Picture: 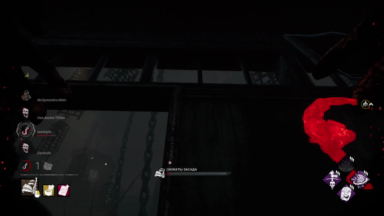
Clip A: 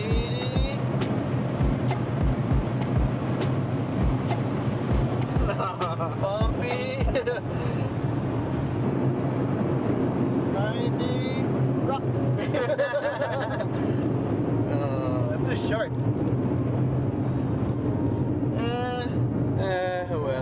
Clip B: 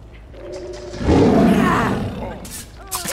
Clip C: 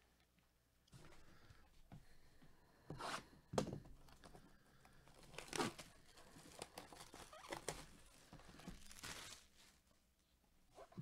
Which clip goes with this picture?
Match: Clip B